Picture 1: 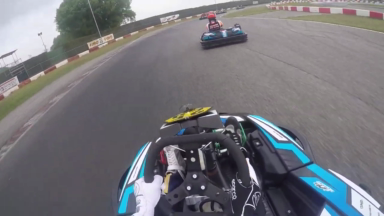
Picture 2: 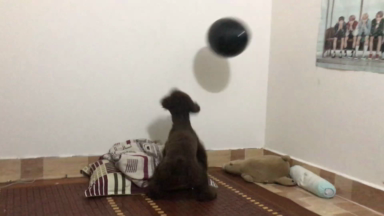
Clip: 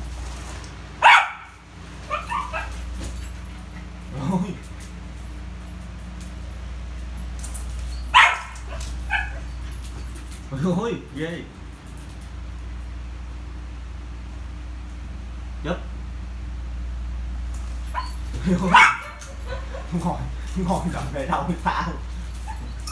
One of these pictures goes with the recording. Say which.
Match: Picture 2